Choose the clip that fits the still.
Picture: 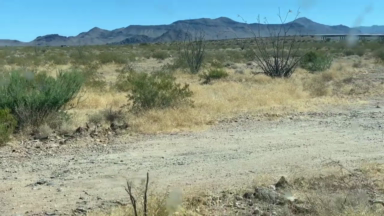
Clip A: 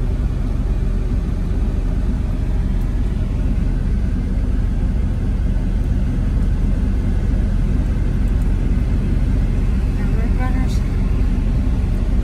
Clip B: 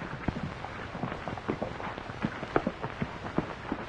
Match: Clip A